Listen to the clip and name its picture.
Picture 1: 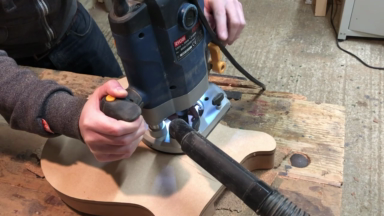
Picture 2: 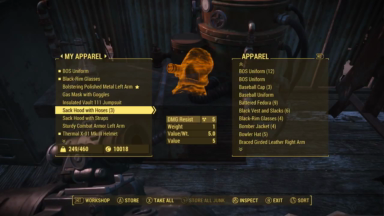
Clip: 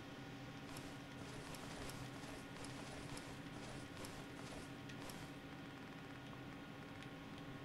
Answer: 2